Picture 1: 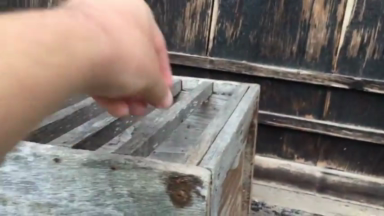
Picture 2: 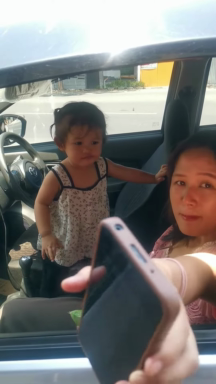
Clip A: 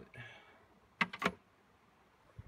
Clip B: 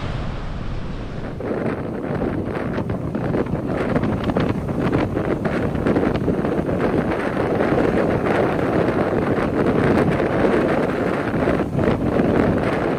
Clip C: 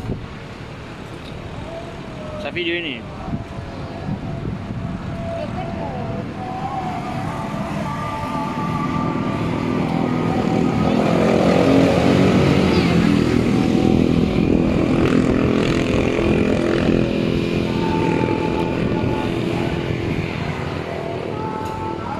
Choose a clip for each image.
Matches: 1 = A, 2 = C